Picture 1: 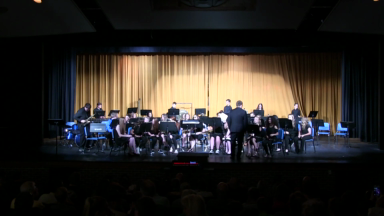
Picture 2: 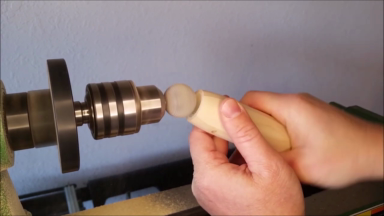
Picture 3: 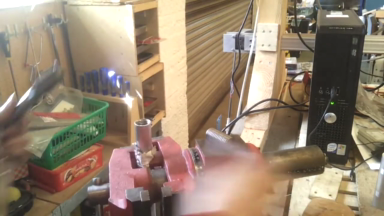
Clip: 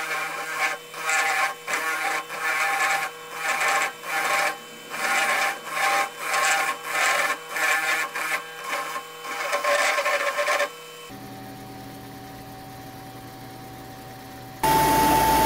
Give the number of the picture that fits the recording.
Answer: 2